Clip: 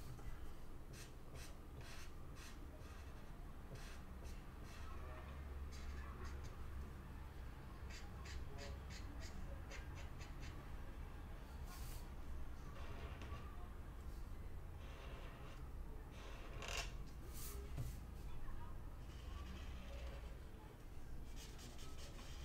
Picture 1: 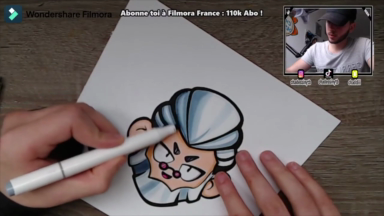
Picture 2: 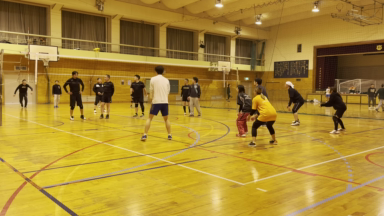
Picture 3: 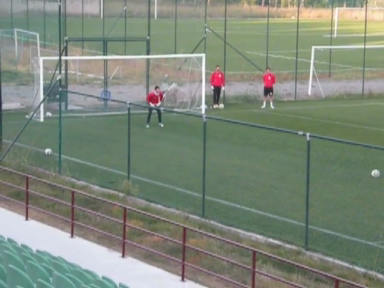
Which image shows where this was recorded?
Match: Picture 1